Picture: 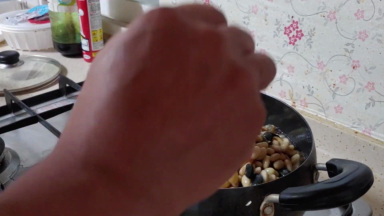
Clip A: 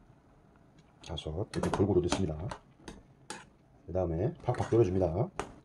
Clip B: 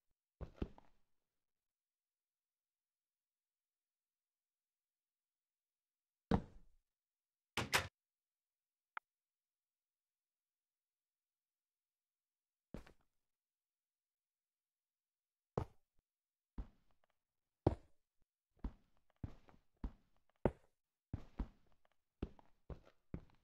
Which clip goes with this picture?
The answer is A